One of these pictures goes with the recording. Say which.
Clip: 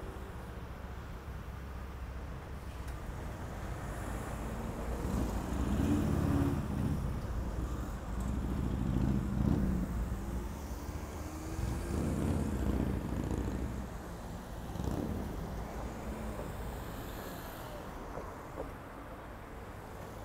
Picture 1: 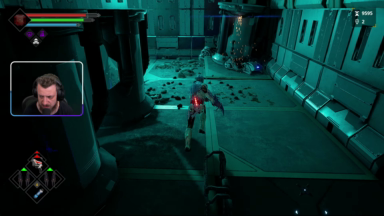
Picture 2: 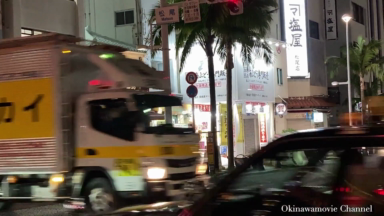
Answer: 2